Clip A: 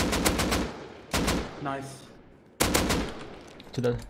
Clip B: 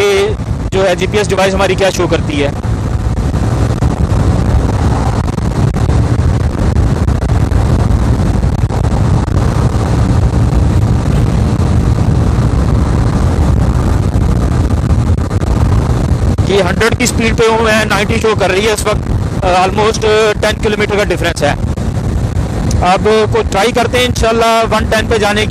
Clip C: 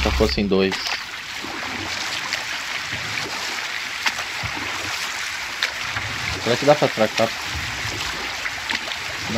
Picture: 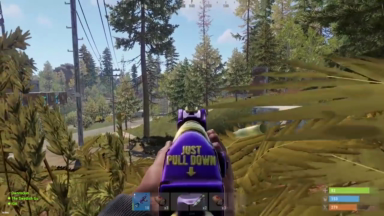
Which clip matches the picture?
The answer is A